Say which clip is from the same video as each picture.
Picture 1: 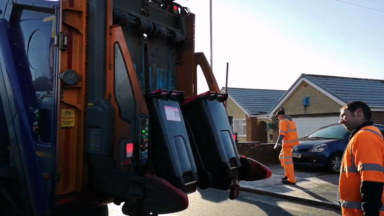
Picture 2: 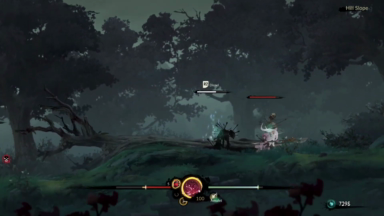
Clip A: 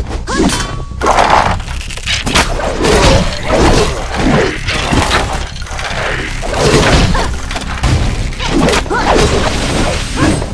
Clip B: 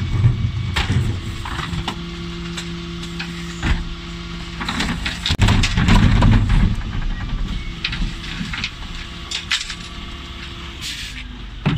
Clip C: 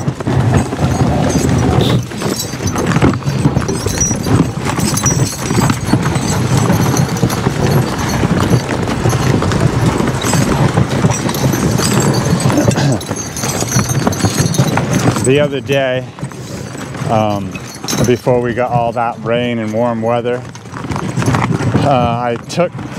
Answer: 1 B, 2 A